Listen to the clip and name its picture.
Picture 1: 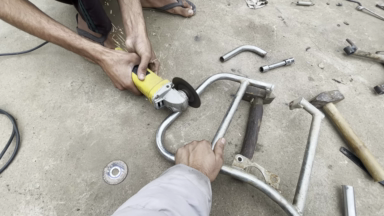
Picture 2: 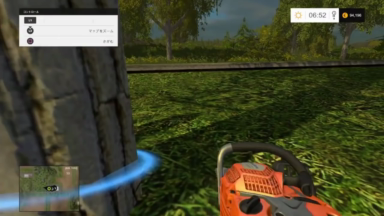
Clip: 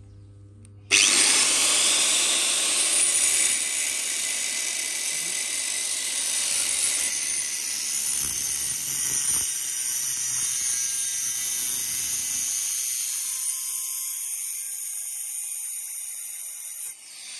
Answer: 1